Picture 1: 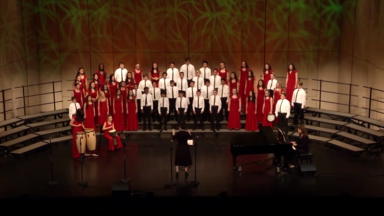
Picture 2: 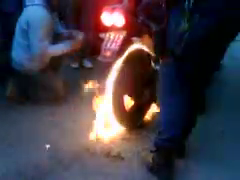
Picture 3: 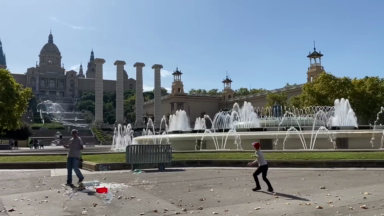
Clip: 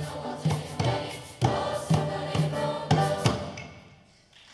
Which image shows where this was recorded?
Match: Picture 1